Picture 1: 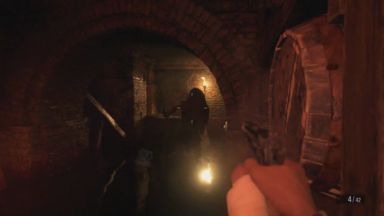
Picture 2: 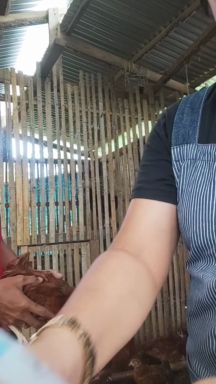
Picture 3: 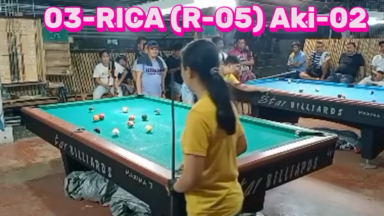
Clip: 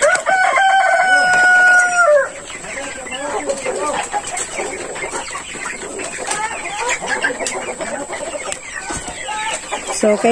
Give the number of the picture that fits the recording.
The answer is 2